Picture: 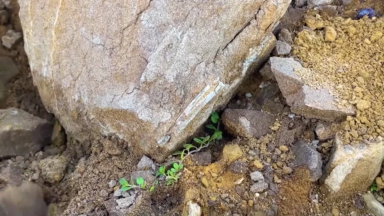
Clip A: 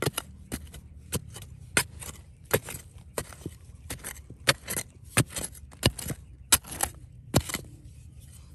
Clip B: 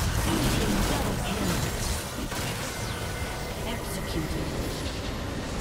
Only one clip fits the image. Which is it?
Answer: A